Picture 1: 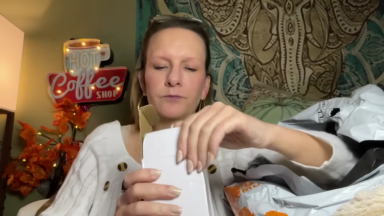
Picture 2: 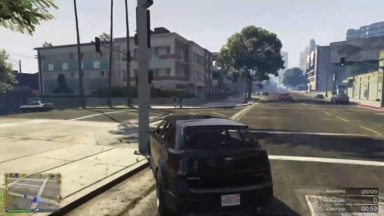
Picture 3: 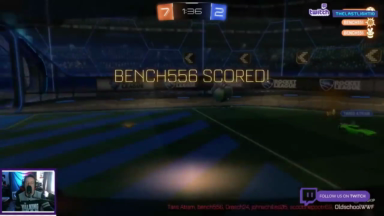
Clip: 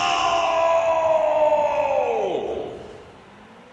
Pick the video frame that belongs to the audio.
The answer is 3